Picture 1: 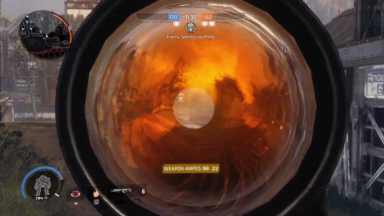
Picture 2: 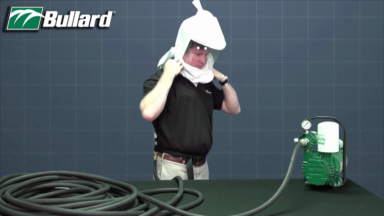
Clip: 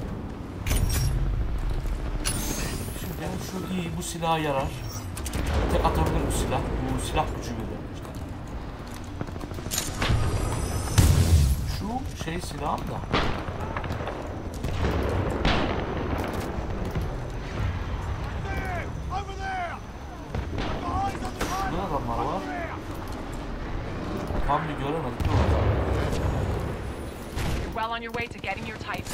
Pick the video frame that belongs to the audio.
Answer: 1